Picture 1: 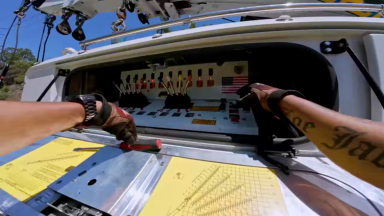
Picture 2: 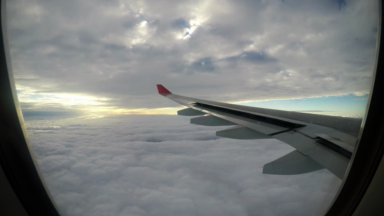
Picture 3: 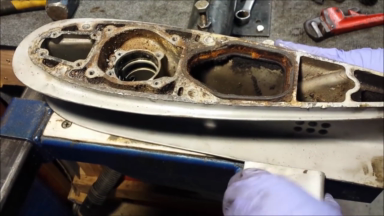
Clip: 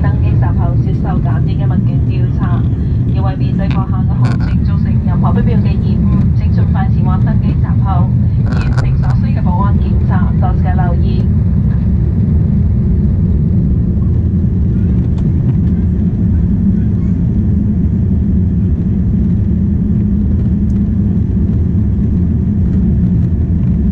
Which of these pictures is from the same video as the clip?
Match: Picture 2